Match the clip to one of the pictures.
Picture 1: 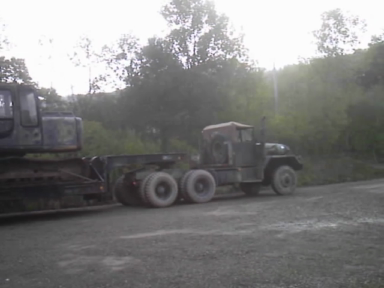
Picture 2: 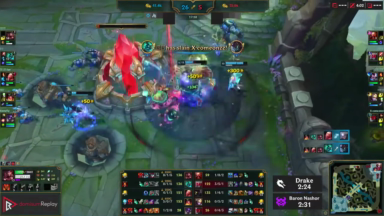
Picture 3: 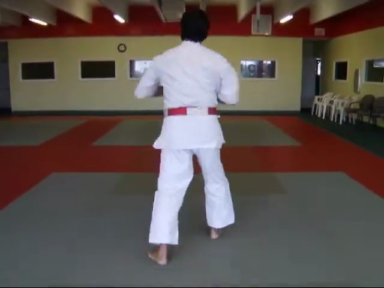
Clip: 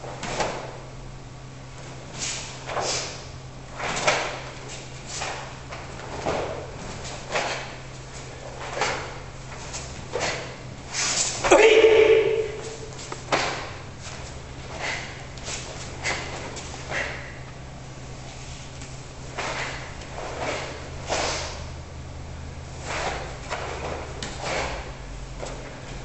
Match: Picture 3